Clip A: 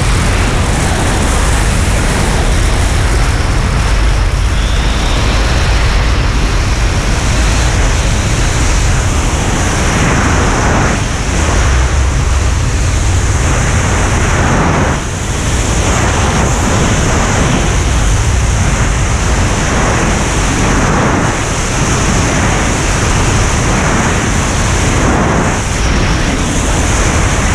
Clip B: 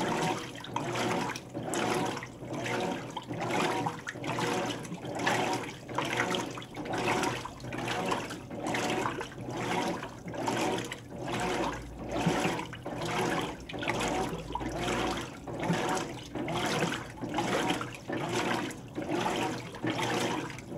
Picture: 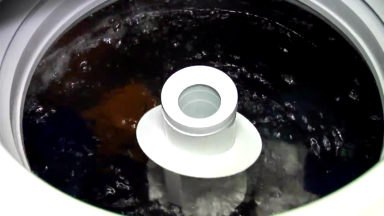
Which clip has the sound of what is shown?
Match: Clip B